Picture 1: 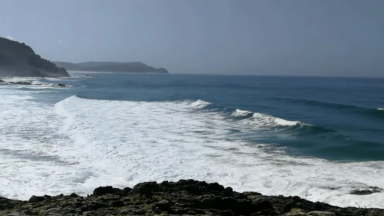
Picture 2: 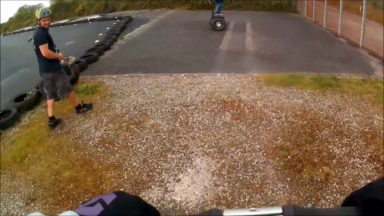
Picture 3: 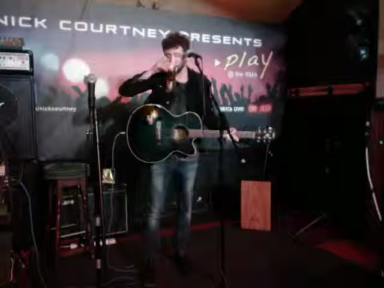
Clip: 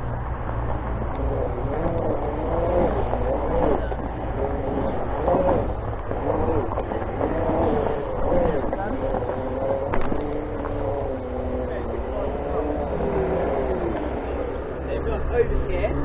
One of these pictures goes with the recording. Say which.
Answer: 2